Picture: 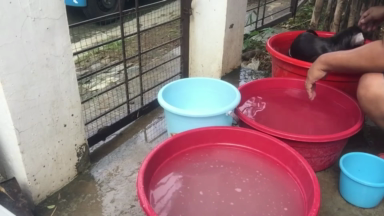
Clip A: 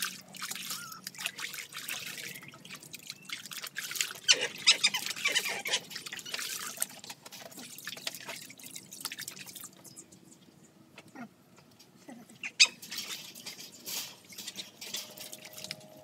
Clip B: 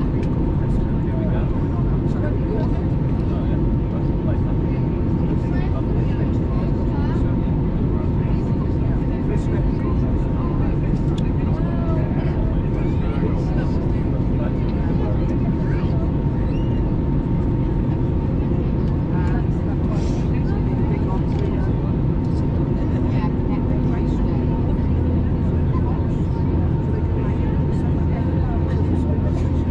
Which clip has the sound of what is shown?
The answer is A